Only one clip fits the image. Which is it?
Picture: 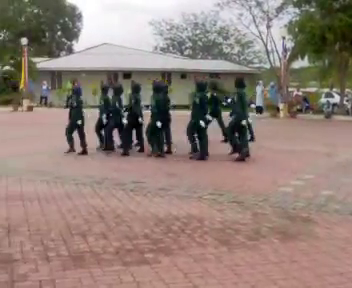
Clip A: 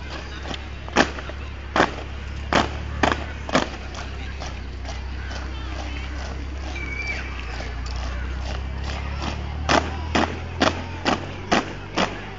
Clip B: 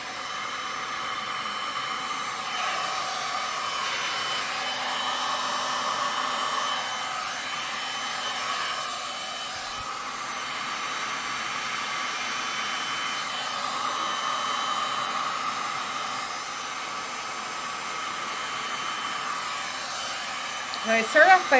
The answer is A